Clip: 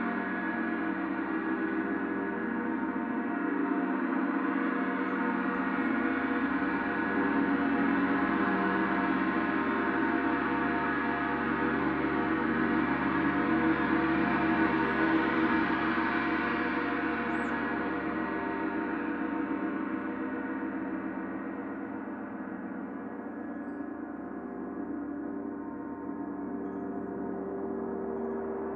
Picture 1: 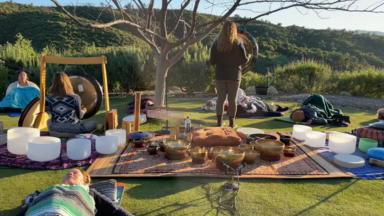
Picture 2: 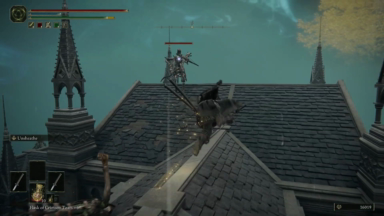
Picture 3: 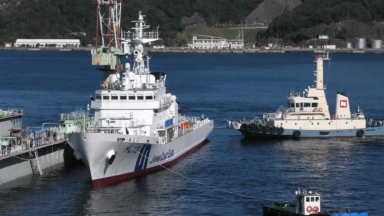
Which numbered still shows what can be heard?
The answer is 1